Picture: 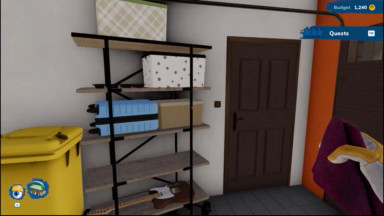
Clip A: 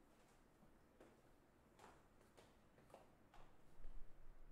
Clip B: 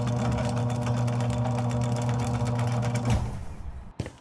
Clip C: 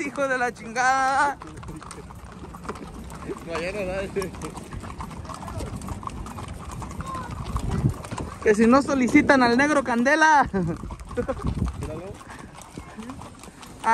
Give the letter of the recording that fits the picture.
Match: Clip B